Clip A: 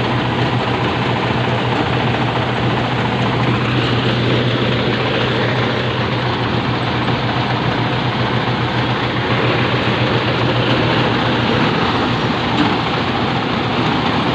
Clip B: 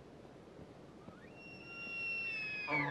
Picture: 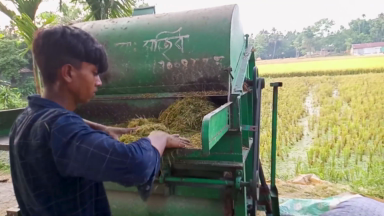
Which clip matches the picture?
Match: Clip A